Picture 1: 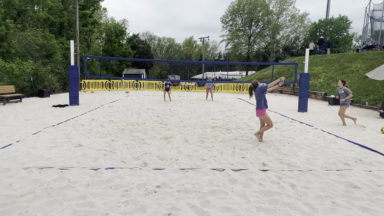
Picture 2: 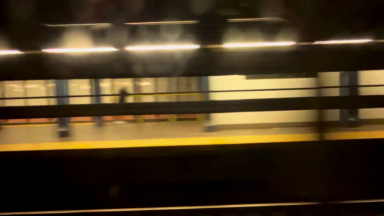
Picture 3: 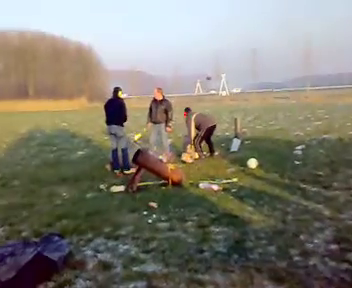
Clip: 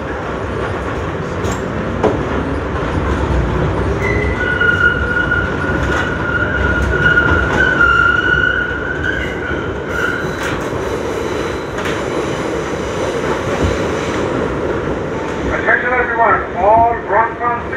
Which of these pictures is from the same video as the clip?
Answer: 2